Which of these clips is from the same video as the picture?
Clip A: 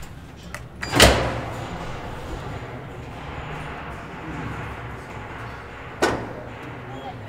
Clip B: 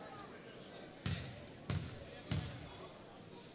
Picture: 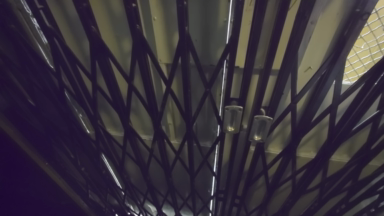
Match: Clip A